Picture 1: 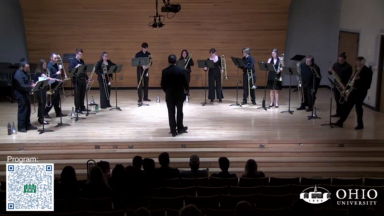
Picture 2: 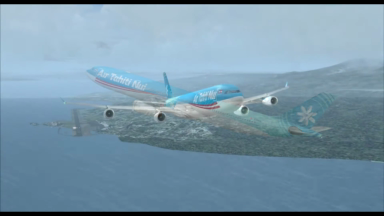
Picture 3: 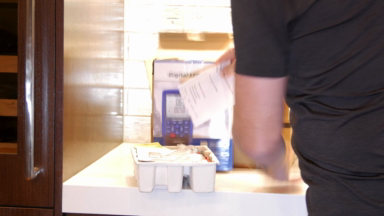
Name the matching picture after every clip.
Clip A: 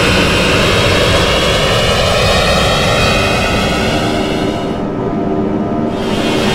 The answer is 2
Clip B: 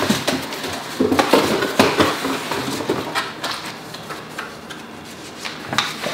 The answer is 3